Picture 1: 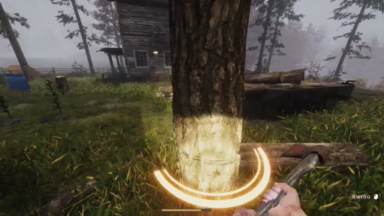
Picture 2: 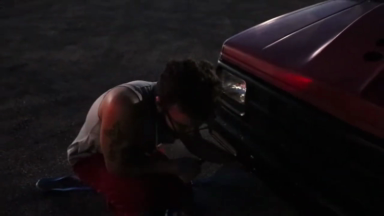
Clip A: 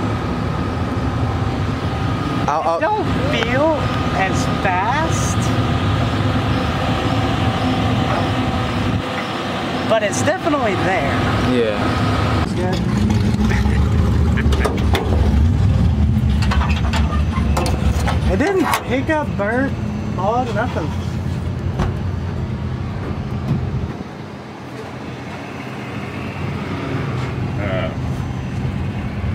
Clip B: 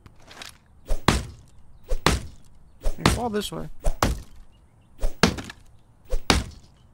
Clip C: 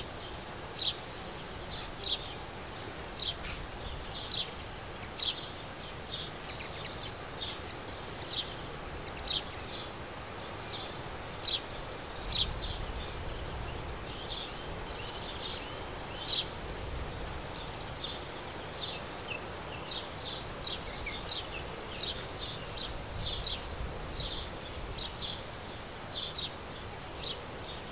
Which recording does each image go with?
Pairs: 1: B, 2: A